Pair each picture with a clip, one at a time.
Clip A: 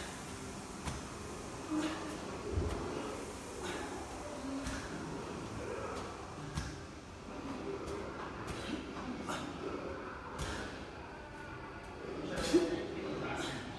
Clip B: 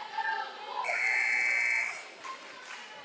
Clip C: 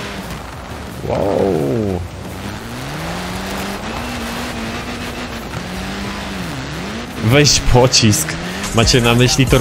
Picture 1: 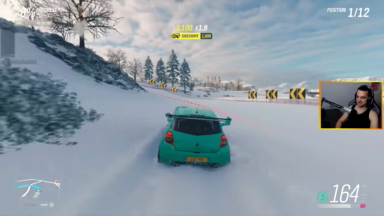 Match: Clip C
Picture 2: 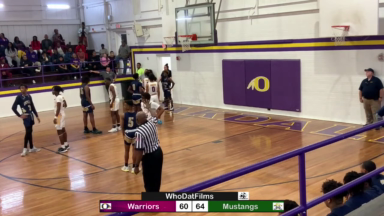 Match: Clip B